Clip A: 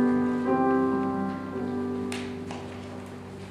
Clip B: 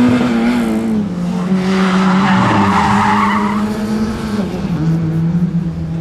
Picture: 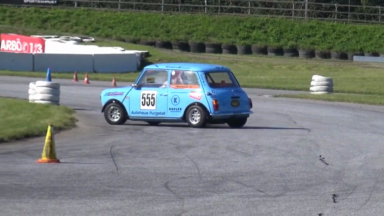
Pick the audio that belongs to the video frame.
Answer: B